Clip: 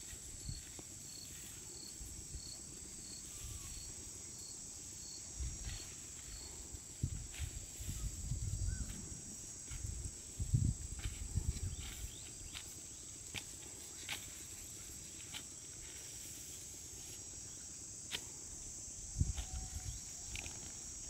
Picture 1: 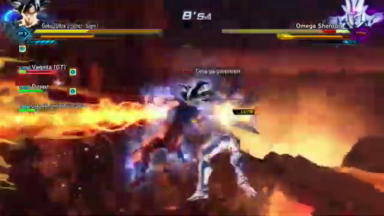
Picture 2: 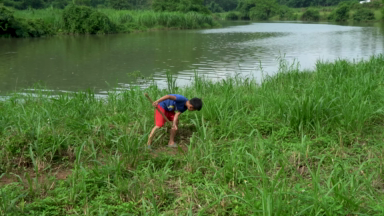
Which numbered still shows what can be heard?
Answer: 2